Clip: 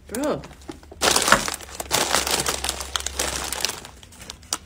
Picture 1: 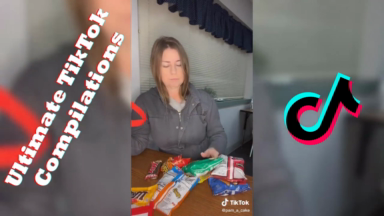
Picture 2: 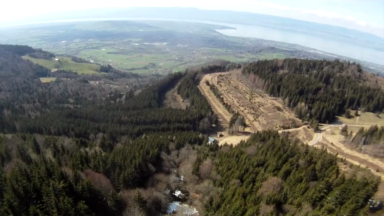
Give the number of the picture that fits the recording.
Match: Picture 1